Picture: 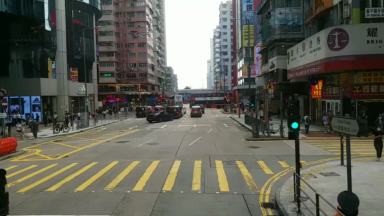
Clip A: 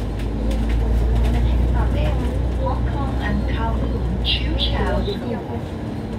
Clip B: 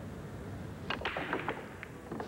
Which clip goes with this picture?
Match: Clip A